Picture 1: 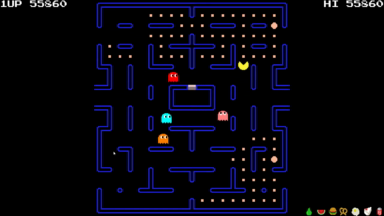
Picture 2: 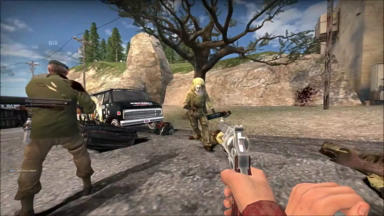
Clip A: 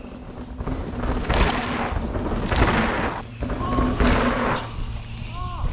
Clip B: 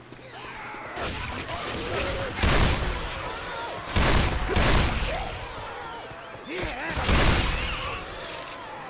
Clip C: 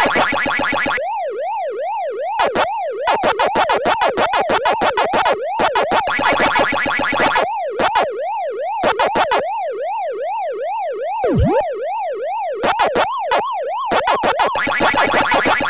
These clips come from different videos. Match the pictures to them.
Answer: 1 C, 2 B